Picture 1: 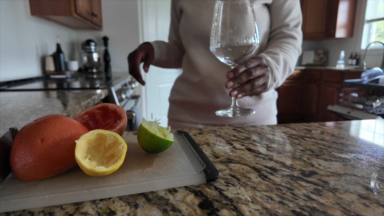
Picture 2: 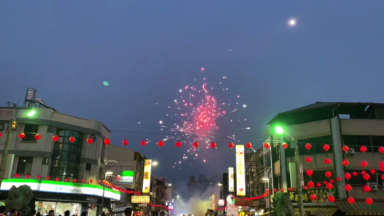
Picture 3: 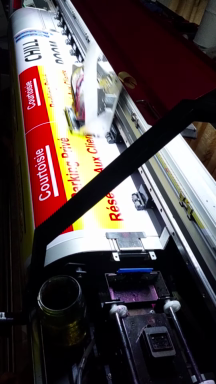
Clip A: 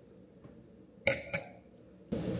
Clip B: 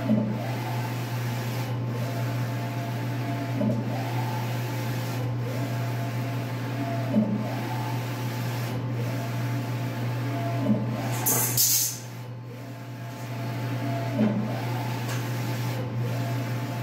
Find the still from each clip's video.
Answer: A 1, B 3